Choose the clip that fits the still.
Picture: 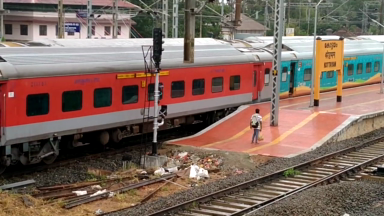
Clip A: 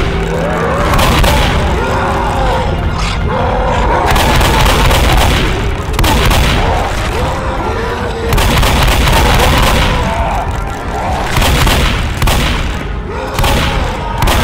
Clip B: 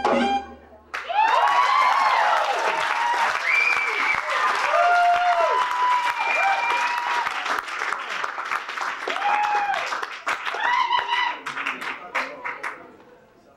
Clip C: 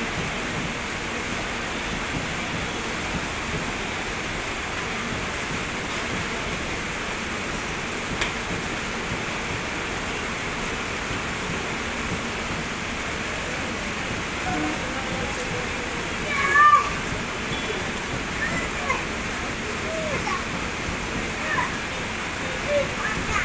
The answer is C